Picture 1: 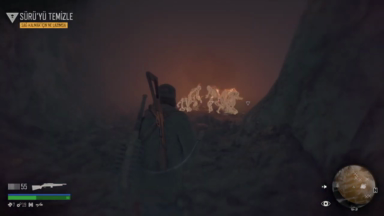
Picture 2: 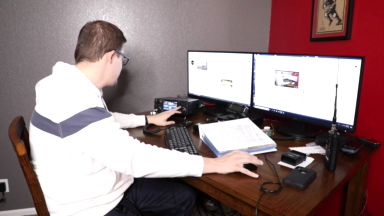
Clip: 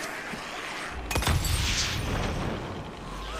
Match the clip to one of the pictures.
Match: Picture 1